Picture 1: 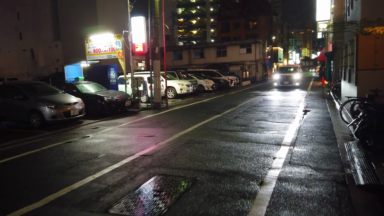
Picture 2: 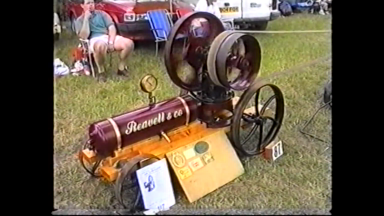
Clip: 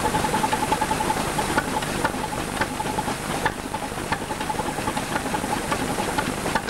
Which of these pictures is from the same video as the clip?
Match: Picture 2